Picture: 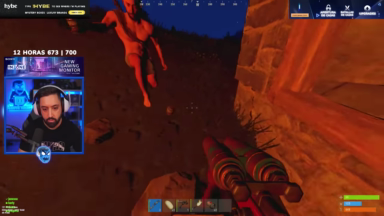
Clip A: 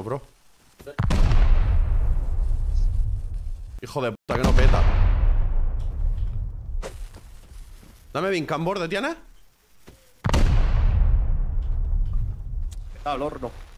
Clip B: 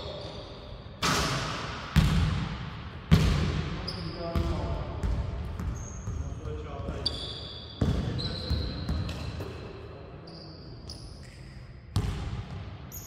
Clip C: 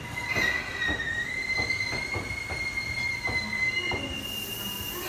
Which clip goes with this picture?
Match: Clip A